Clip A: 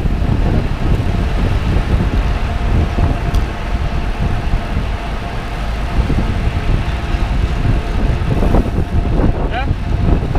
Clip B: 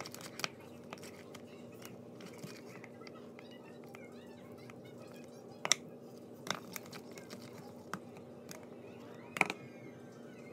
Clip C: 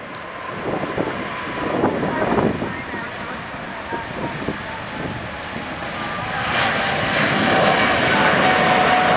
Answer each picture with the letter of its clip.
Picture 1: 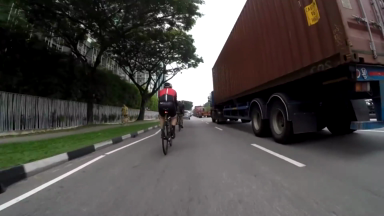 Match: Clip A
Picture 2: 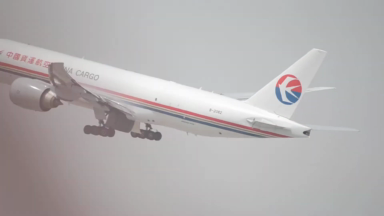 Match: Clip C